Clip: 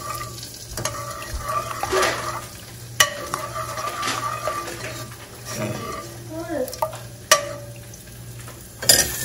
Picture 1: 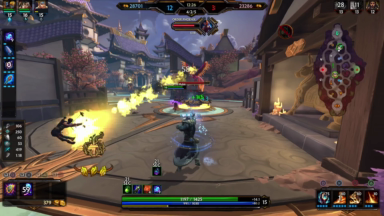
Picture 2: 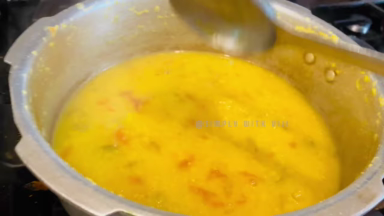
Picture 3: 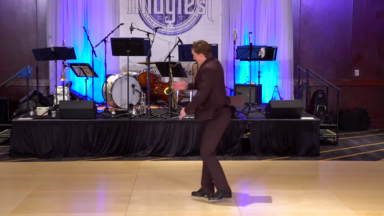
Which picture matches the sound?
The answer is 2